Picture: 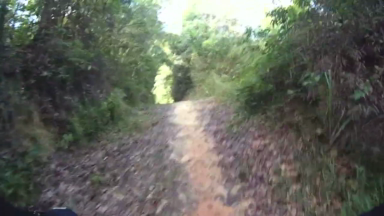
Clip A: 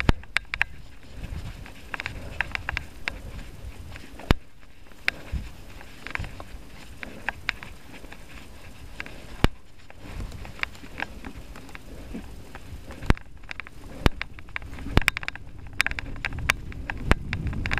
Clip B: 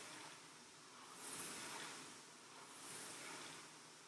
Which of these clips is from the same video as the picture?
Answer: A